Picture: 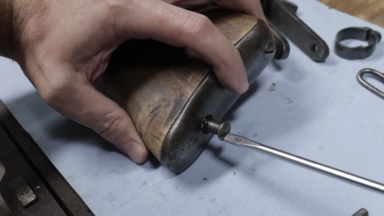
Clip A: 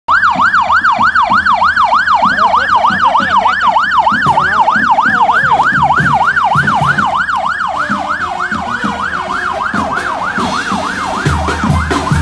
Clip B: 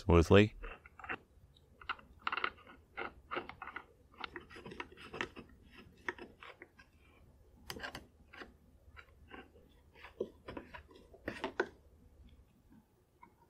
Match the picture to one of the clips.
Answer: B